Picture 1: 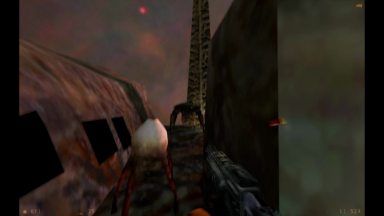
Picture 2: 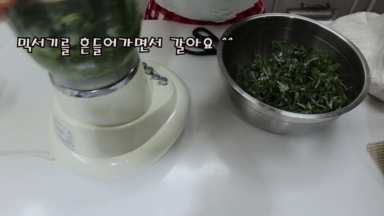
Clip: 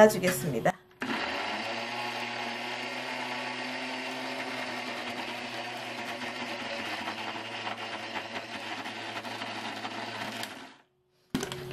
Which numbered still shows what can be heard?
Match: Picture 2